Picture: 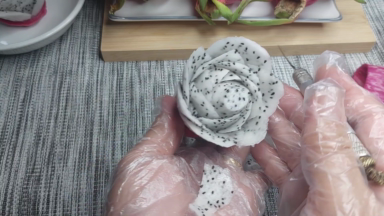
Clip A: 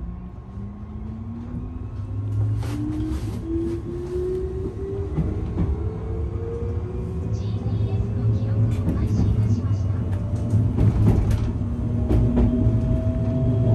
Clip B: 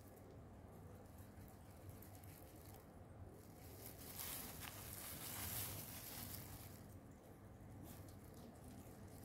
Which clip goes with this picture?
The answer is B